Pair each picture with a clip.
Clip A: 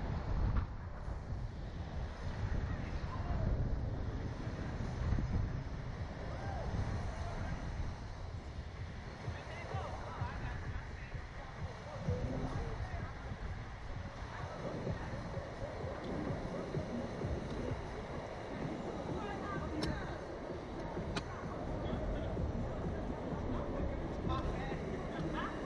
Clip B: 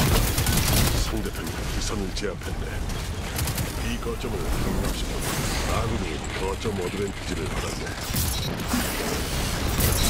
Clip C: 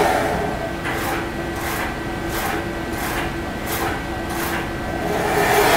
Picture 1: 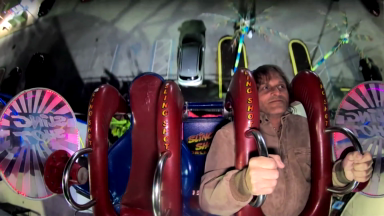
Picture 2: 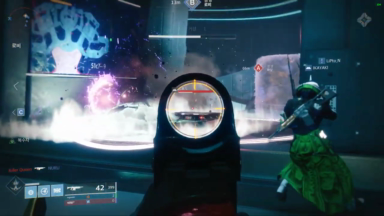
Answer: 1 A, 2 B